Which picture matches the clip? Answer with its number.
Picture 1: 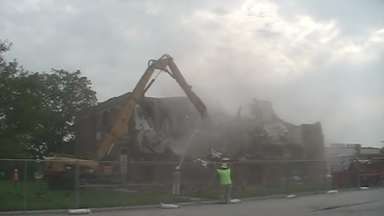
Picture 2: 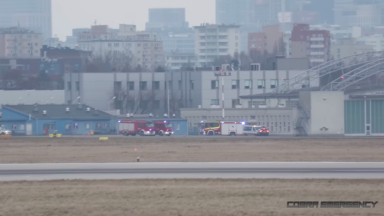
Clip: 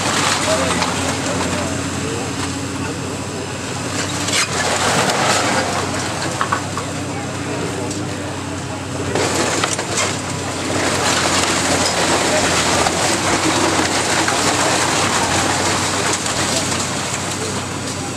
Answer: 1